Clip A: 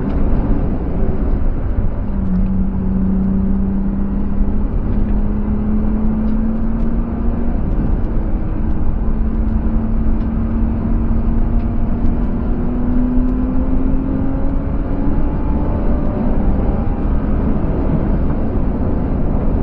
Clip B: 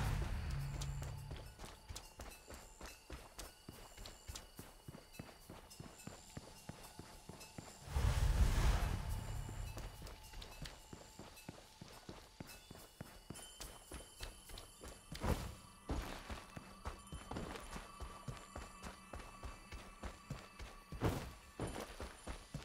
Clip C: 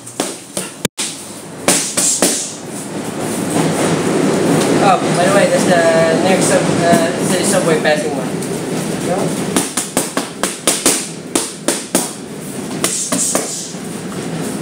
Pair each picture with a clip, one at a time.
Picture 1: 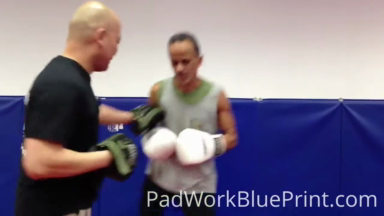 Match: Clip C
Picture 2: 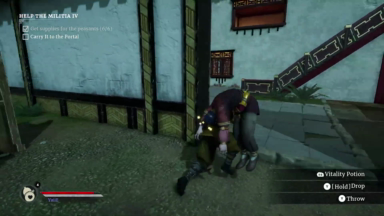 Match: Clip B